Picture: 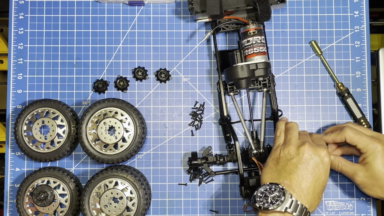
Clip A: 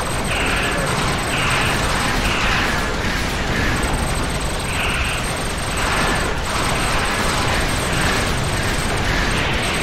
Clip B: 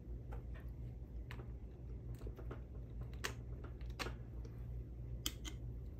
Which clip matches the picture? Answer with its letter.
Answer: B